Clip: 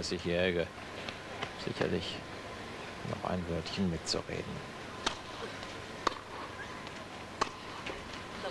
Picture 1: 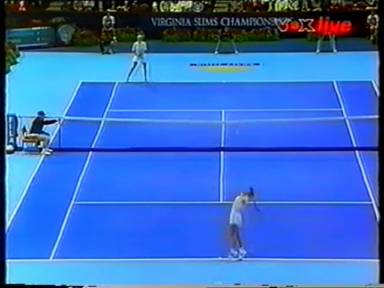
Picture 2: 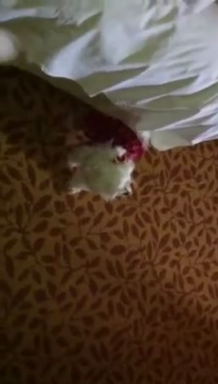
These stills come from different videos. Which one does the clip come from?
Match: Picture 1